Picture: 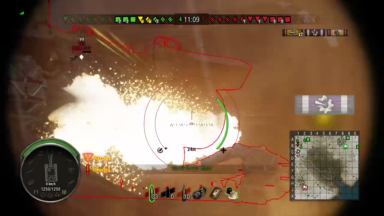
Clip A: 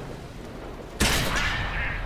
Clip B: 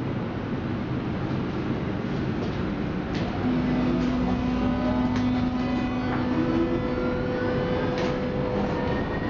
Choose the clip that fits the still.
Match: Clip A